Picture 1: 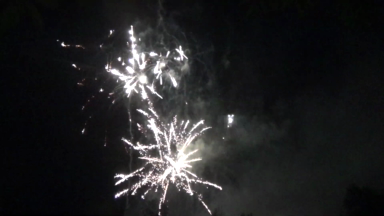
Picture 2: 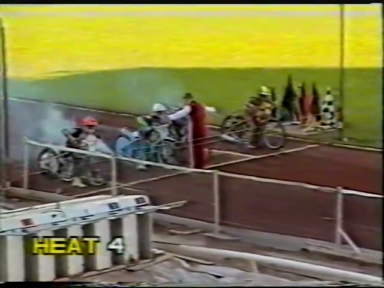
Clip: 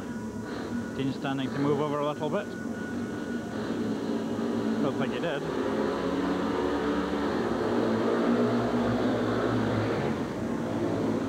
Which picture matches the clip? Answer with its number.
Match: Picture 2